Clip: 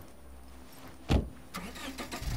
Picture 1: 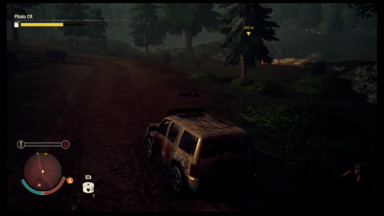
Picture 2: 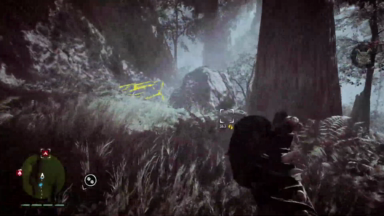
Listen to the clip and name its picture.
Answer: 1